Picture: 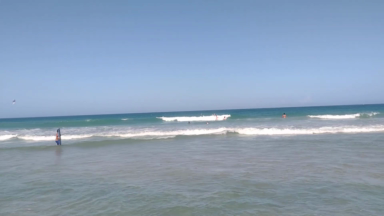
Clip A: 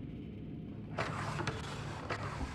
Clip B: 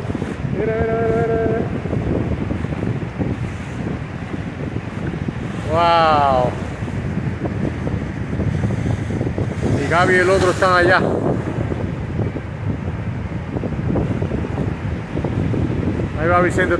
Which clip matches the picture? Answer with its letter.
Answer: B